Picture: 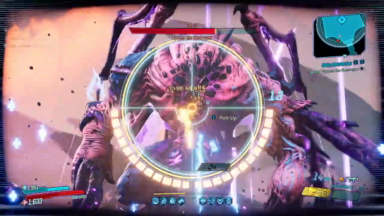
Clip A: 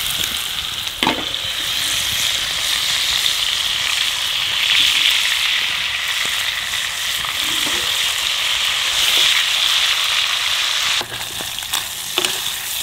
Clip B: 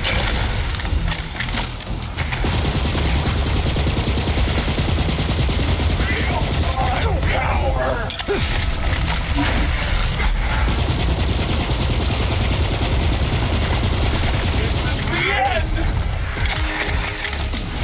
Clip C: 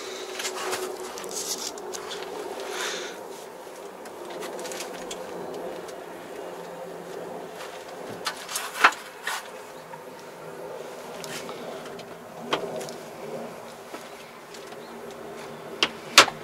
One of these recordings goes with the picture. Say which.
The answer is B